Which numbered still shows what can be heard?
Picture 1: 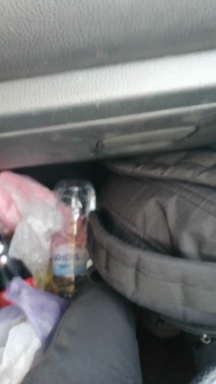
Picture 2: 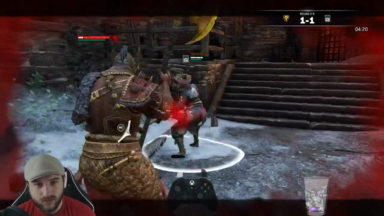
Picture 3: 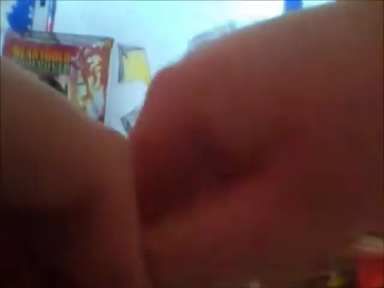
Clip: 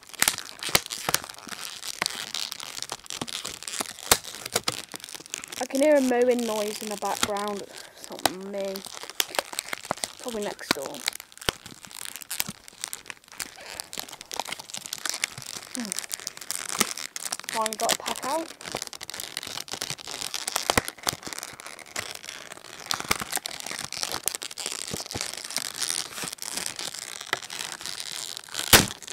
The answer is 3